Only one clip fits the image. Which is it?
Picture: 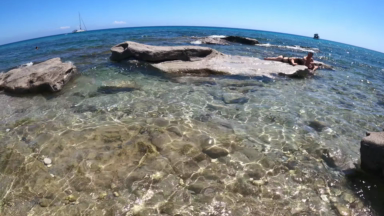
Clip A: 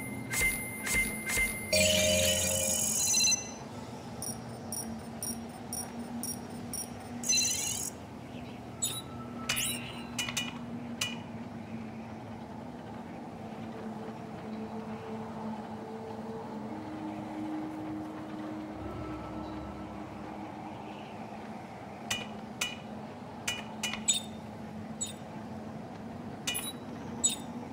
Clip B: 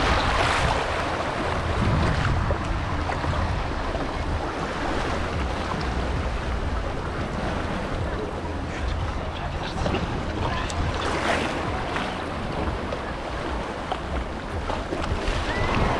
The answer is B